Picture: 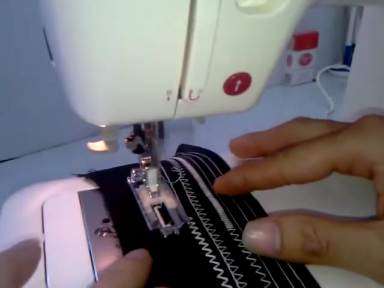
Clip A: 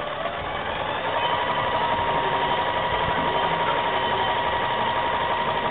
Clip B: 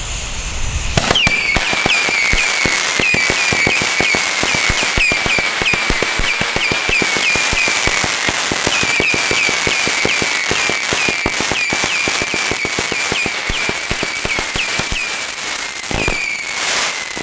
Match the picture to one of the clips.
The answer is A